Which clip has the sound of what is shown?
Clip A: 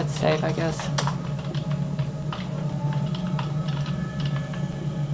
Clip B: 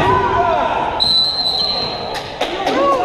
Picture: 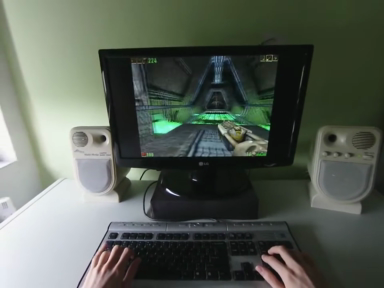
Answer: A